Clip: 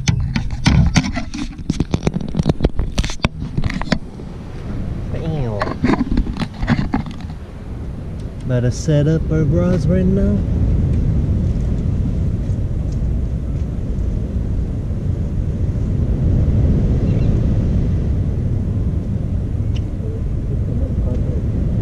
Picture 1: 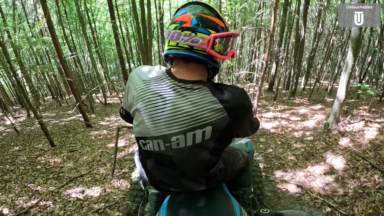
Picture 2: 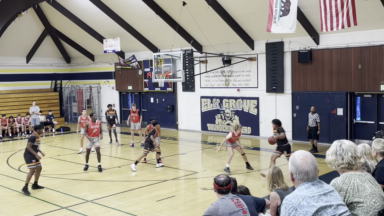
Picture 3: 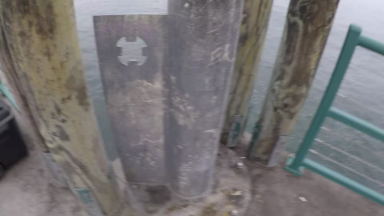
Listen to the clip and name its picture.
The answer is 3